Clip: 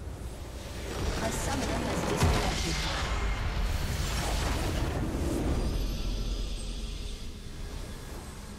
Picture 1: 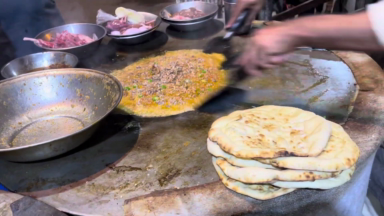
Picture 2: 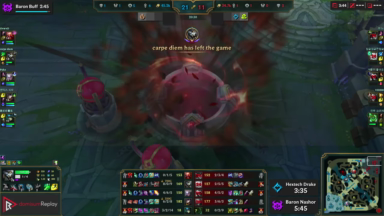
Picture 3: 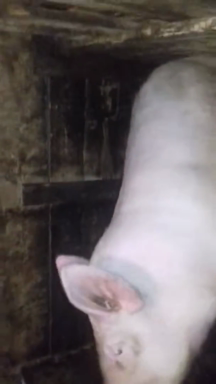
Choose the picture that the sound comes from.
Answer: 2